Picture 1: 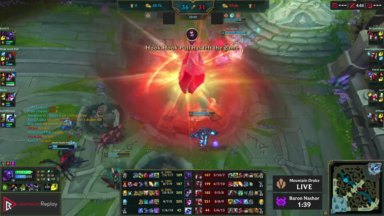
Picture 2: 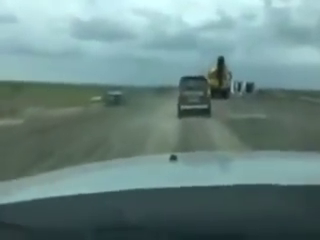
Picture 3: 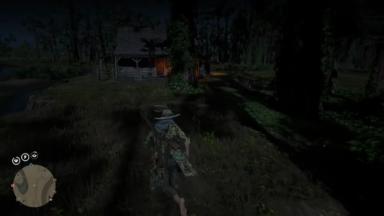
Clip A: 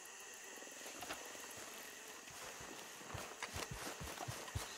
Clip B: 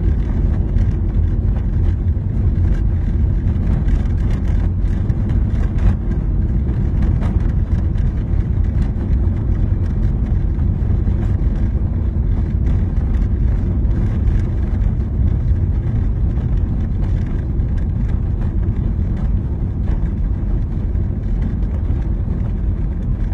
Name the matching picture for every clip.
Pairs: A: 3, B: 2